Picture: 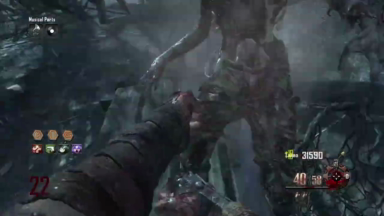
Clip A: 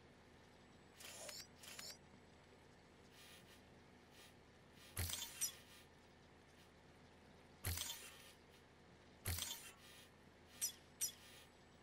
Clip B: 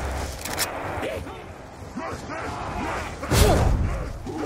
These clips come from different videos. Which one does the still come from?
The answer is B